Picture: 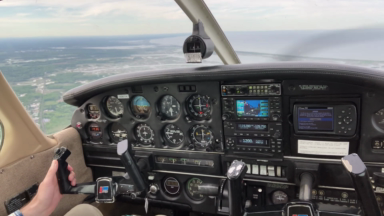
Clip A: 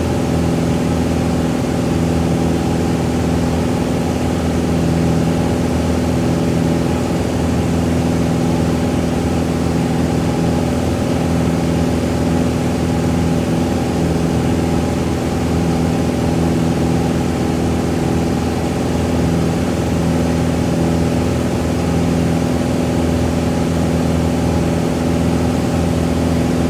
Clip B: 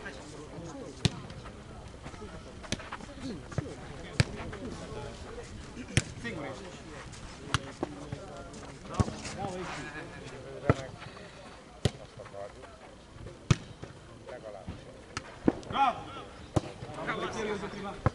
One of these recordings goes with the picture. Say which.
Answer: A